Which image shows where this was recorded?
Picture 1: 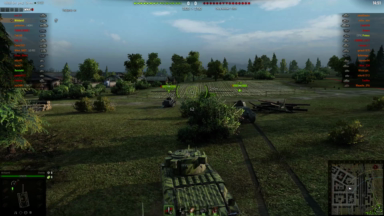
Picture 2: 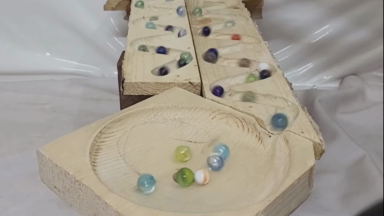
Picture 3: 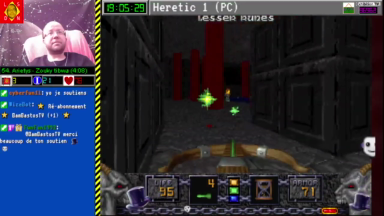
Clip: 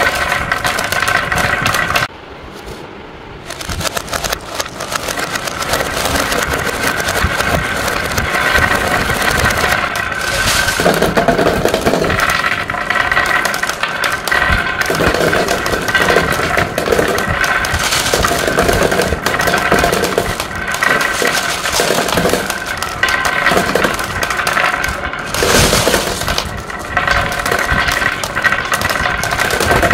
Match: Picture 2